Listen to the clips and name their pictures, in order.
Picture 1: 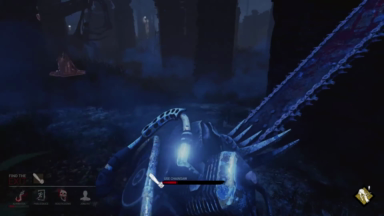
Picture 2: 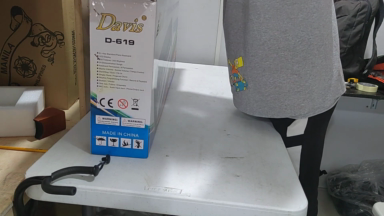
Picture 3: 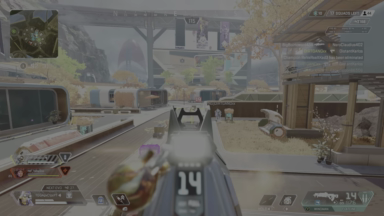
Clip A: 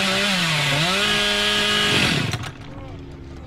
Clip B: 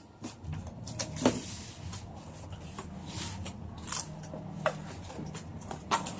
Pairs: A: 1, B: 2